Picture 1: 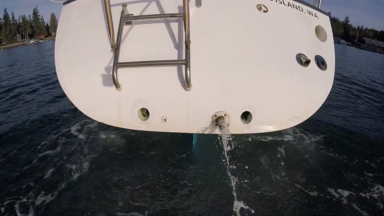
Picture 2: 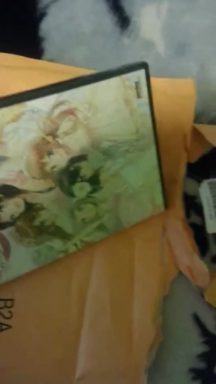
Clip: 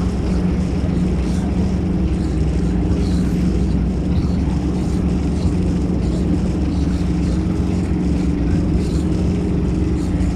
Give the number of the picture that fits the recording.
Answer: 1